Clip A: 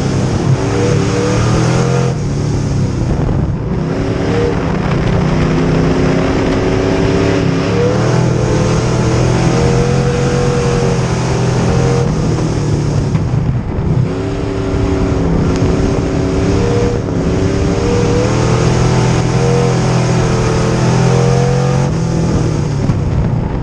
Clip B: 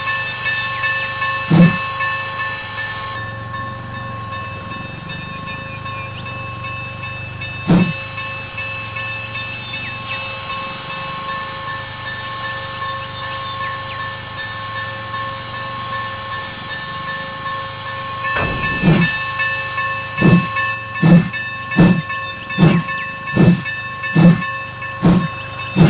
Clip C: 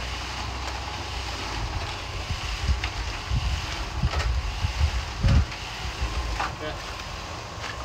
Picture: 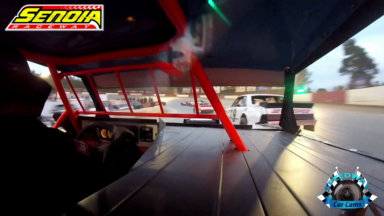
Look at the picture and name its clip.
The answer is A